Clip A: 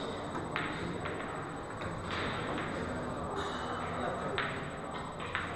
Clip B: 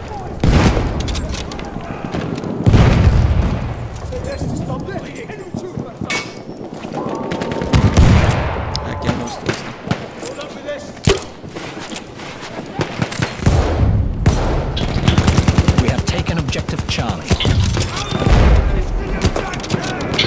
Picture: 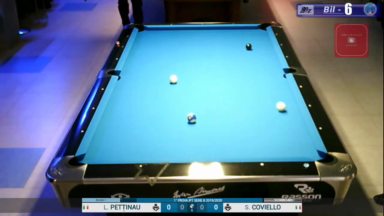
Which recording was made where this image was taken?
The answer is A